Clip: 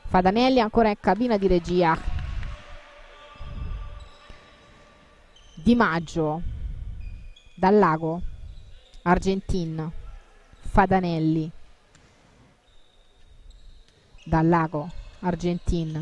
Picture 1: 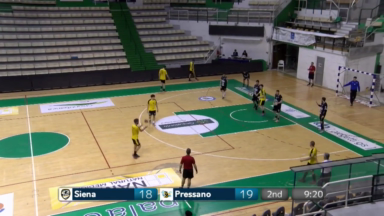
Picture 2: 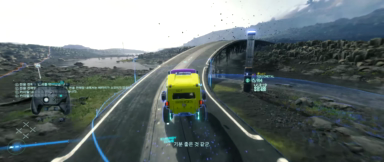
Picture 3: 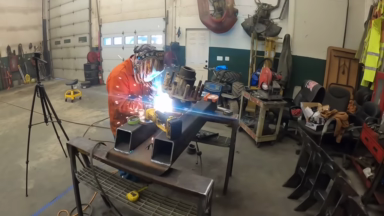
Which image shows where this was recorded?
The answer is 1